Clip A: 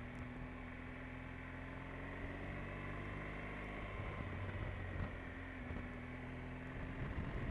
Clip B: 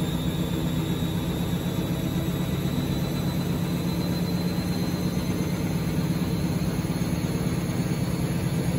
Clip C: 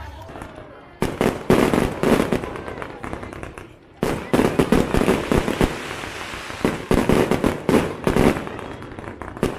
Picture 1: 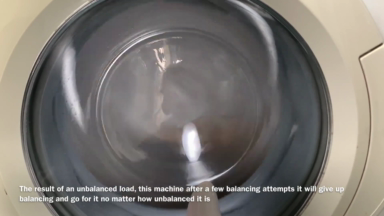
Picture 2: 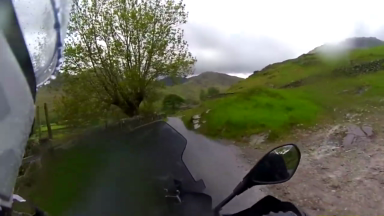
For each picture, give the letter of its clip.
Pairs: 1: B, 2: A